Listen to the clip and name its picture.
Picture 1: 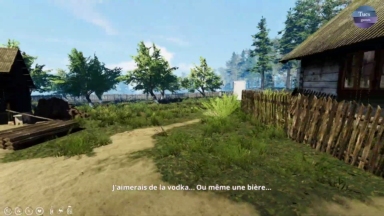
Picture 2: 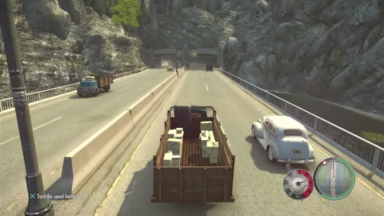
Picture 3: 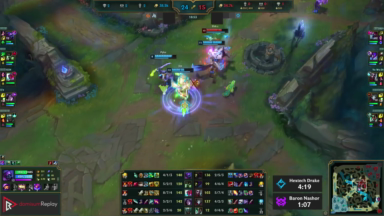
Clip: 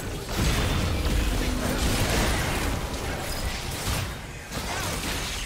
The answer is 3